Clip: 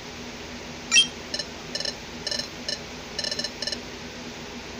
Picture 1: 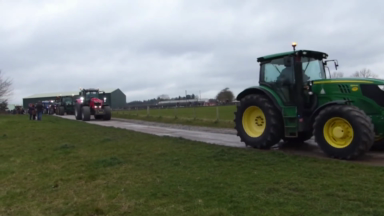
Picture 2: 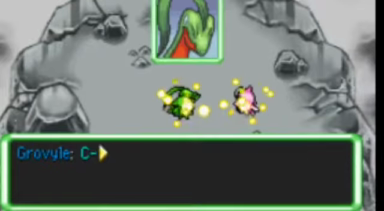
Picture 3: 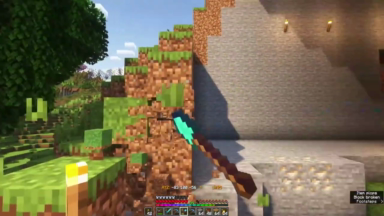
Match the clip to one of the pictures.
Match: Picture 2